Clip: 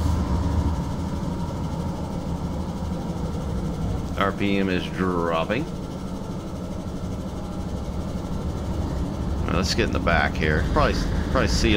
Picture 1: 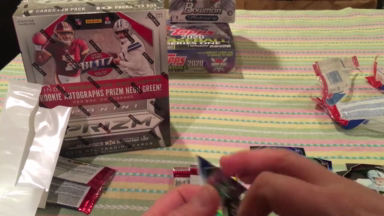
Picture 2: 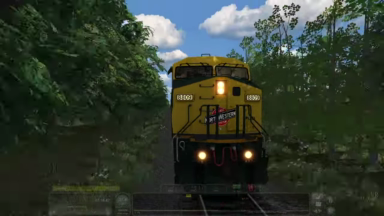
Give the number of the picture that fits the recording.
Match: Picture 2